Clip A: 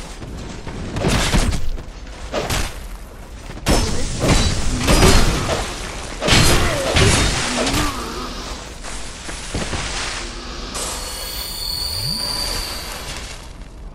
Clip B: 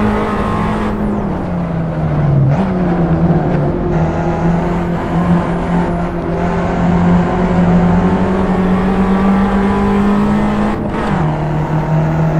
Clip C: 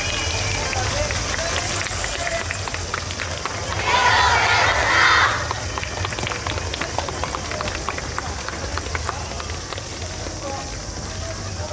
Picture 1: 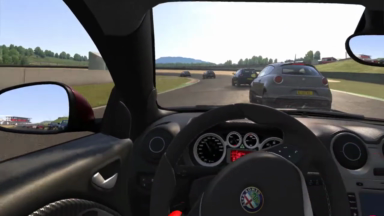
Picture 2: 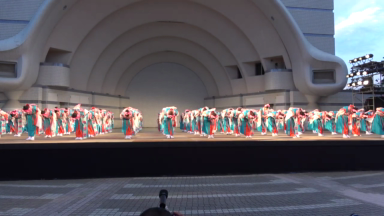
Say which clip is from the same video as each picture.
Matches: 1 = B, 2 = C